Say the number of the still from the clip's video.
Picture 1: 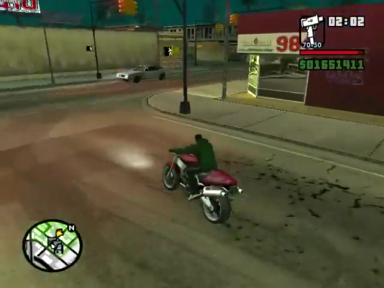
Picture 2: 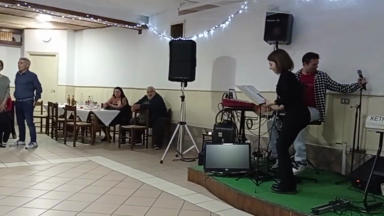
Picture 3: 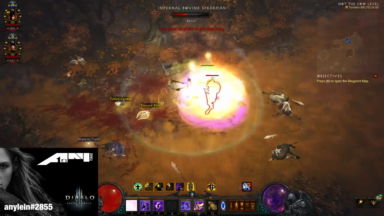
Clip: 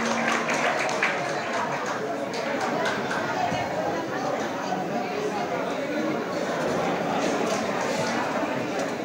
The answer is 2